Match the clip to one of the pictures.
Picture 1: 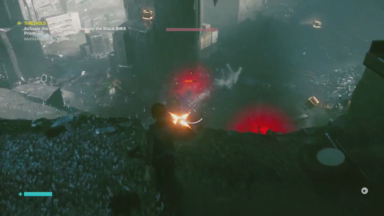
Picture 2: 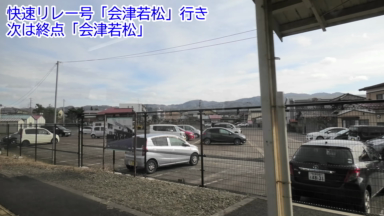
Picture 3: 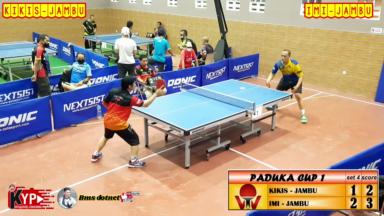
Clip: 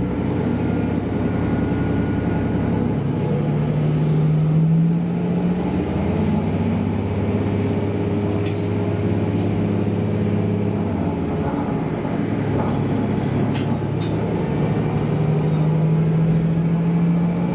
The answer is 2